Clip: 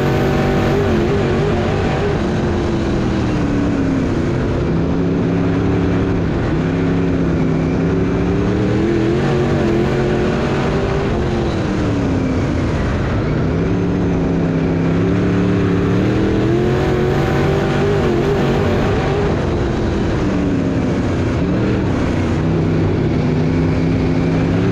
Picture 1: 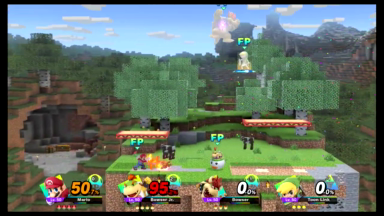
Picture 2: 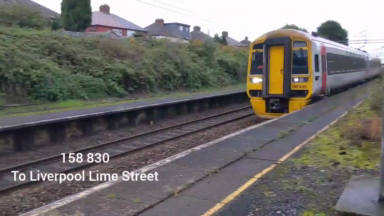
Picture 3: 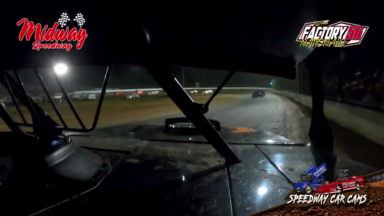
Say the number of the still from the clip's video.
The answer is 3